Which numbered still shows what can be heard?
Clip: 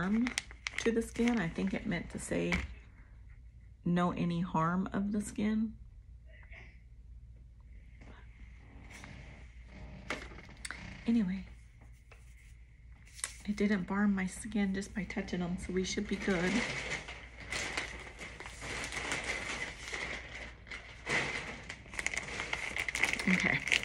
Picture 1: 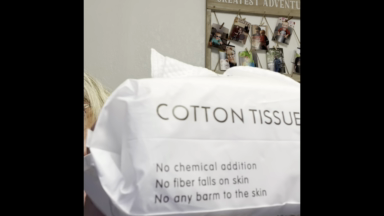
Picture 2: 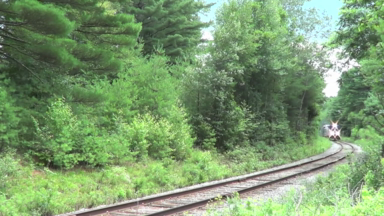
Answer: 1